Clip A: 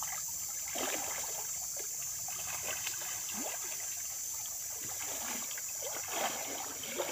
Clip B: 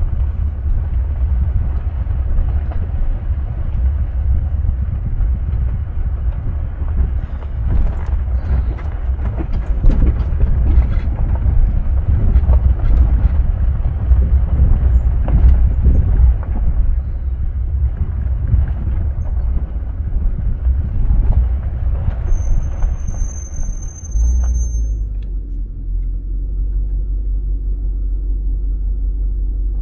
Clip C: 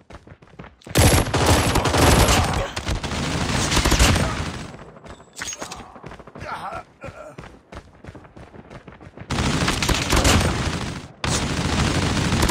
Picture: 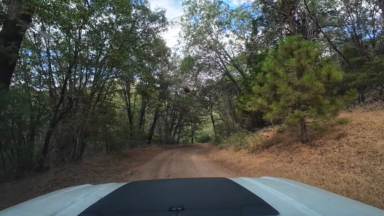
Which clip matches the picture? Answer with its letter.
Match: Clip B